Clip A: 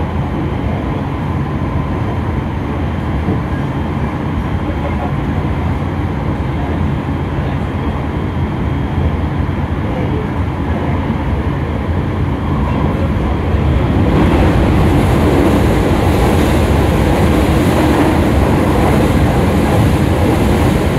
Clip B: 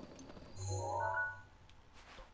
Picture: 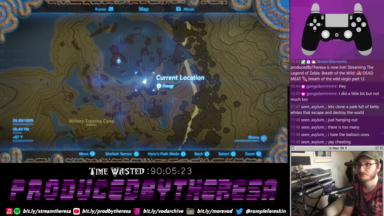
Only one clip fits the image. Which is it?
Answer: B